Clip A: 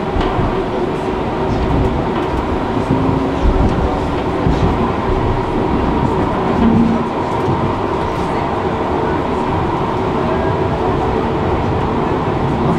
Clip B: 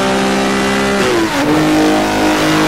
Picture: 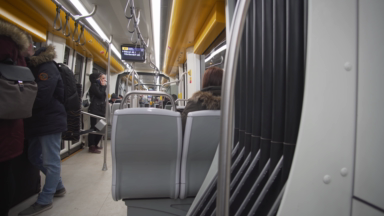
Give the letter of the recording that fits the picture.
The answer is A